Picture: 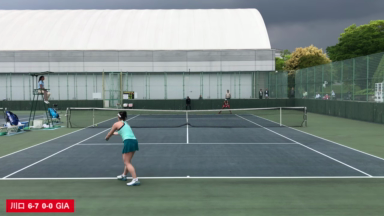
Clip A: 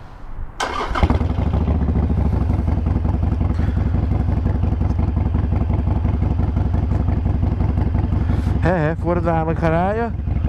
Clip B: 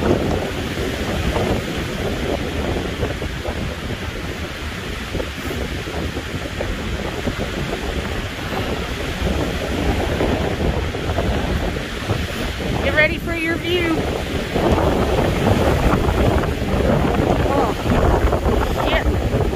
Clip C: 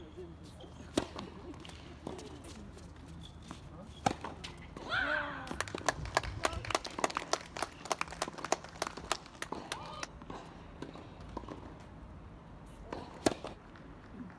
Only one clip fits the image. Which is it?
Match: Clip C